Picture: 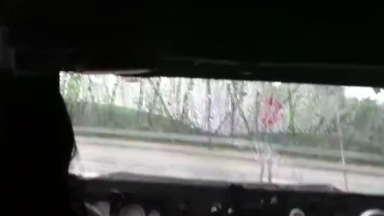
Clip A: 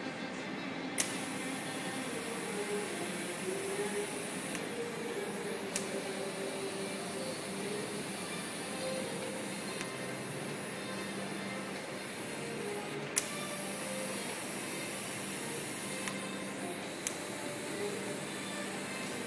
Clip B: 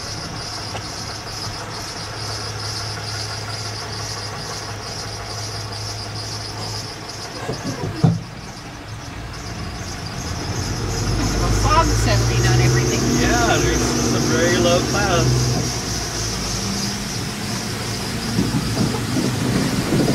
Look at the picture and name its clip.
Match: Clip B